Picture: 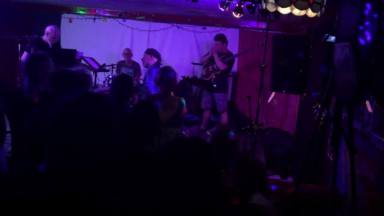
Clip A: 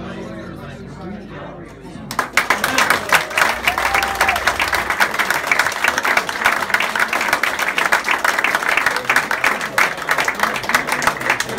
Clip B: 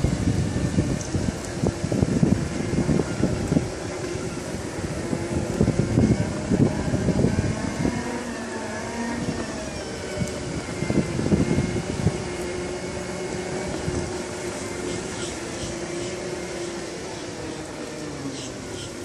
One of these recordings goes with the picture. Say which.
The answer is A